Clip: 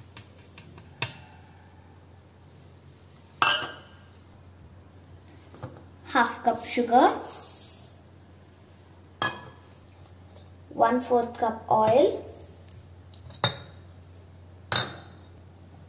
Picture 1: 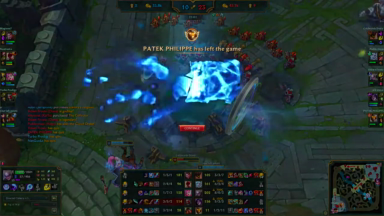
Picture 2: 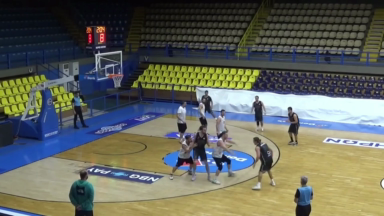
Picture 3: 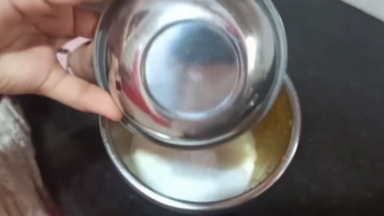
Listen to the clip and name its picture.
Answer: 3